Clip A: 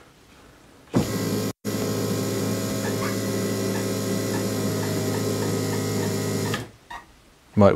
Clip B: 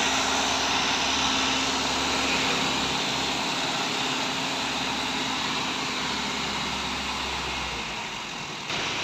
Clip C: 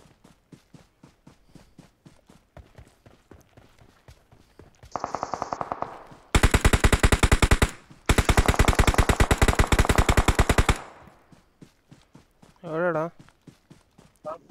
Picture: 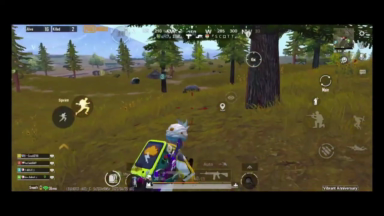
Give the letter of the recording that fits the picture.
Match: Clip C